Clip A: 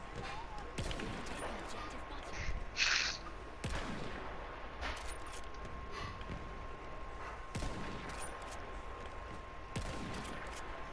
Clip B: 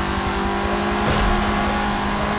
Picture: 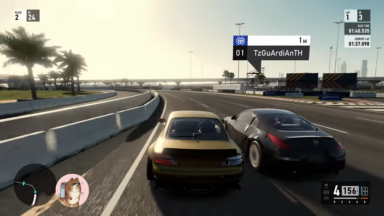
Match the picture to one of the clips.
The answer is B